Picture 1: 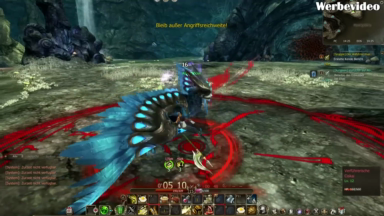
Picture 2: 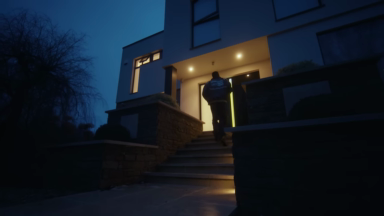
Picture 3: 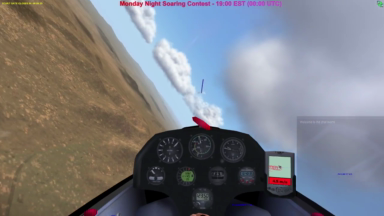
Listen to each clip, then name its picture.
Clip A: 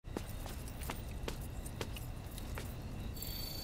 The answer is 2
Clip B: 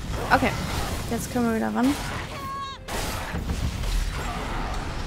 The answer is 1